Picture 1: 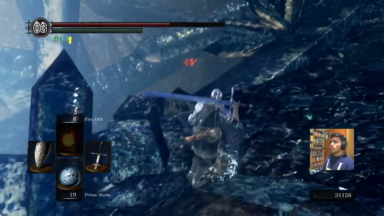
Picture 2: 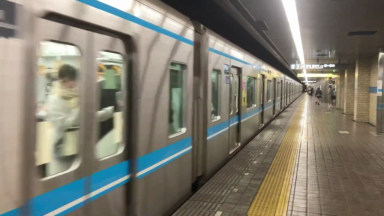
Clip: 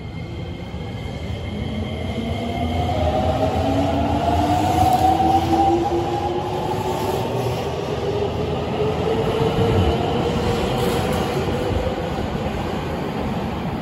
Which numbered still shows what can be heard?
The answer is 2